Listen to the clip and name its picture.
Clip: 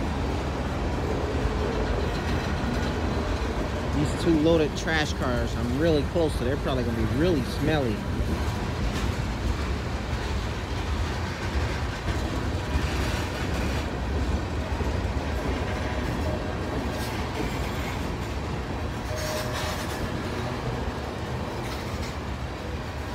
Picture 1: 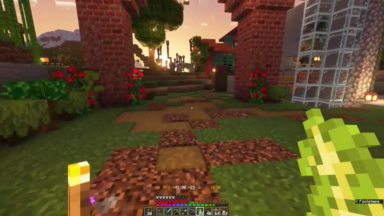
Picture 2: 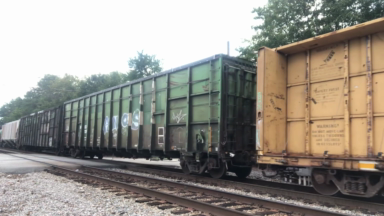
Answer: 2